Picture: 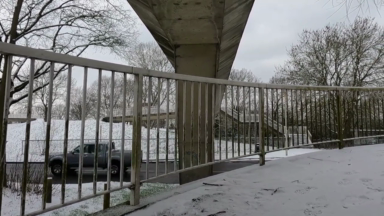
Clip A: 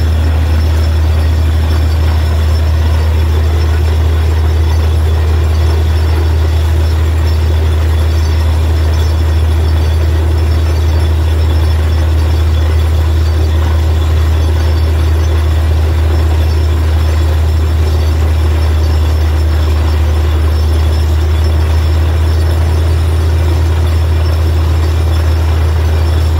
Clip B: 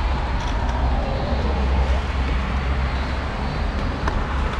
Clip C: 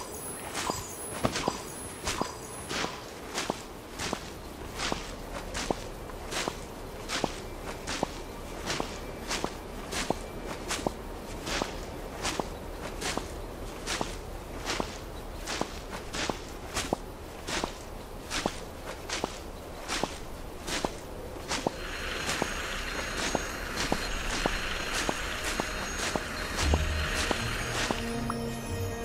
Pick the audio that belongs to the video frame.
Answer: B